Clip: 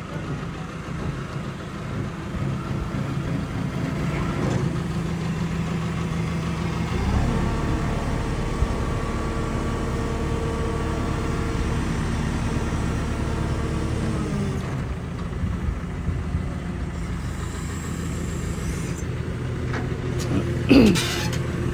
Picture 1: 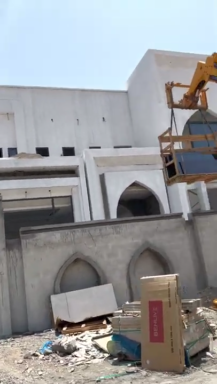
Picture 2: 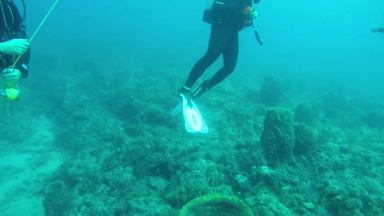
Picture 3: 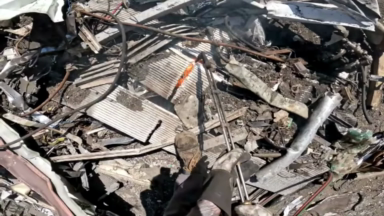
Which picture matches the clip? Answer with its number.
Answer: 1